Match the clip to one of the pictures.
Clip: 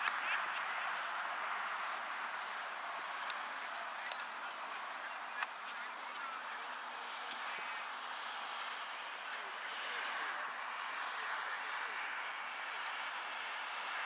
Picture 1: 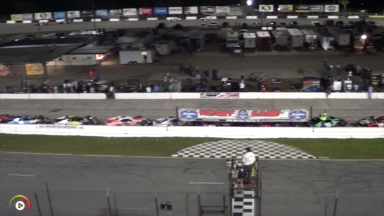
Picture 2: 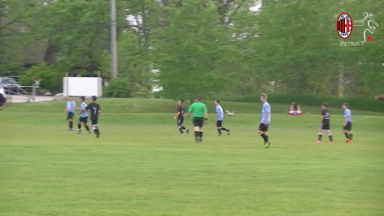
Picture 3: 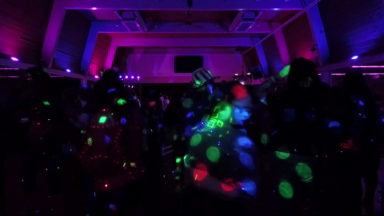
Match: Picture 2